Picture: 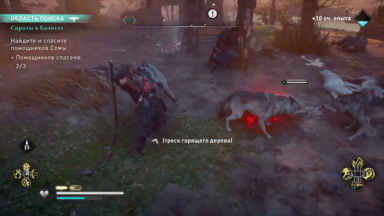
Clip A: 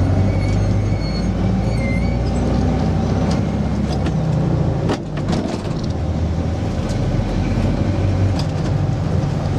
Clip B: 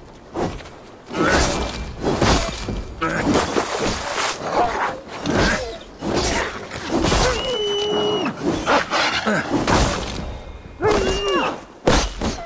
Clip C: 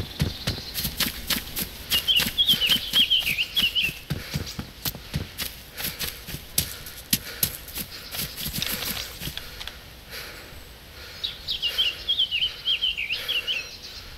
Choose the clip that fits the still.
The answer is B